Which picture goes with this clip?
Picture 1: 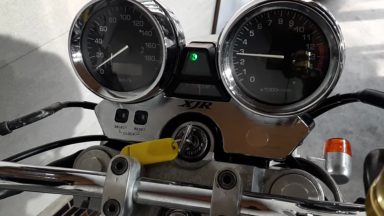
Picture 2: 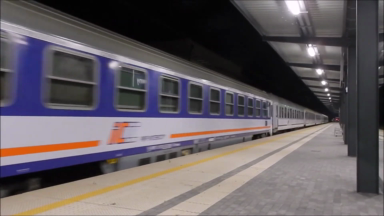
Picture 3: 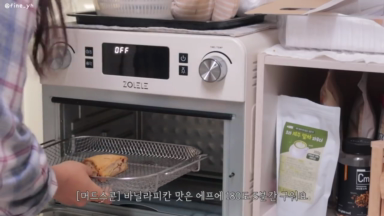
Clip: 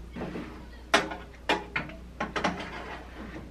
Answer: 3